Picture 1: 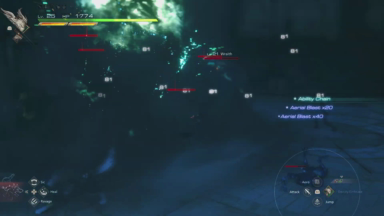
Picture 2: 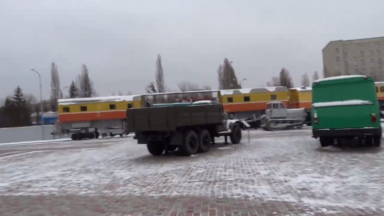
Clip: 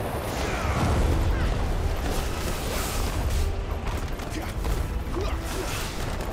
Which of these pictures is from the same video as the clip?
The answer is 1